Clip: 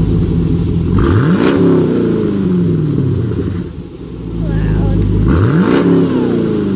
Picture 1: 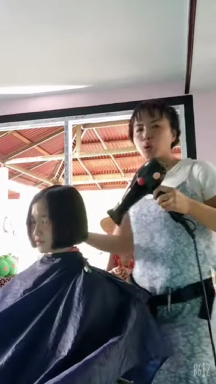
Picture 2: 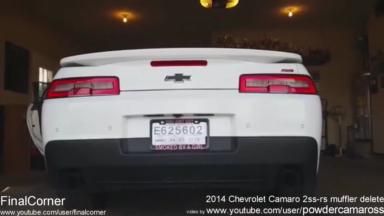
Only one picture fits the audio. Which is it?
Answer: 2